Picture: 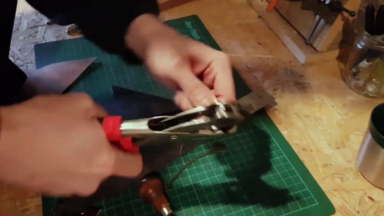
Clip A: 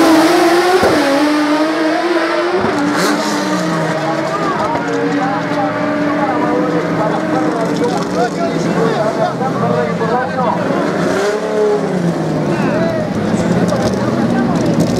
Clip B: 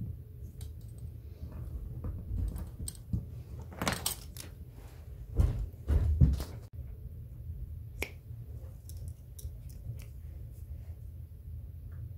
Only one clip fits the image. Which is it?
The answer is B